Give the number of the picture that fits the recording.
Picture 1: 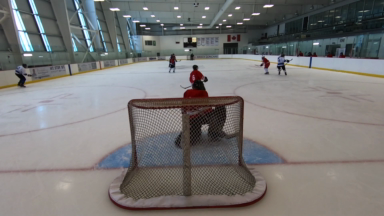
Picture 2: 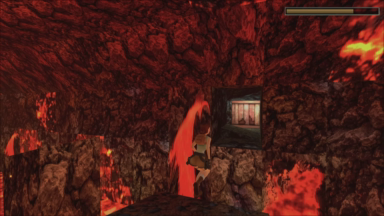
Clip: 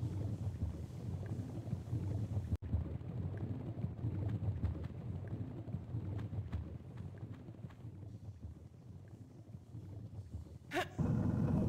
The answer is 2